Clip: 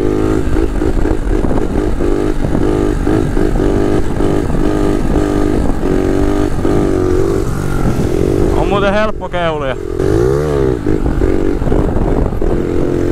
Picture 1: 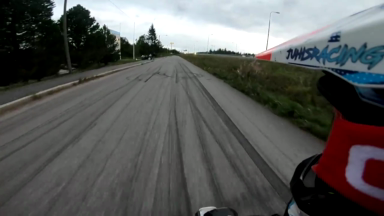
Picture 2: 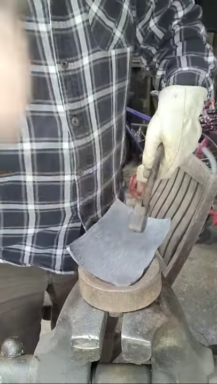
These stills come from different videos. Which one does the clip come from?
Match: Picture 1